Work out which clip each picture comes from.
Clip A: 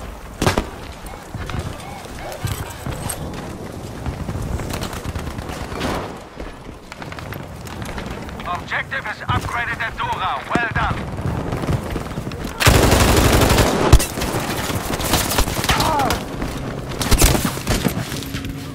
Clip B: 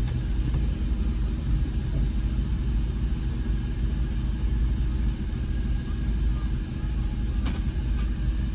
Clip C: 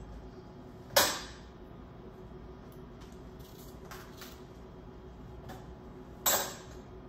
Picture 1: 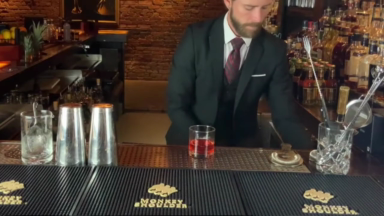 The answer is C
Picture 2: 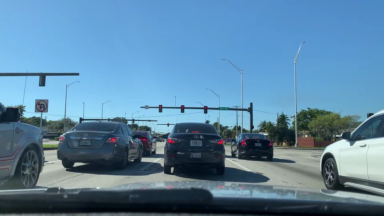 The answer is B